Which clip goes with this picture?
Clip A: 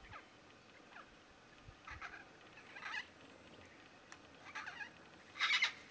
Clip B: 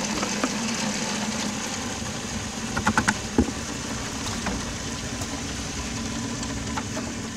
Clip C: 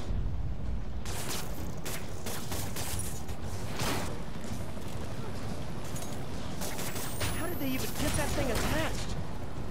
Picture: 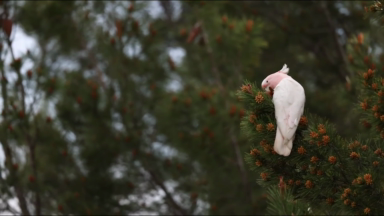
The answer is A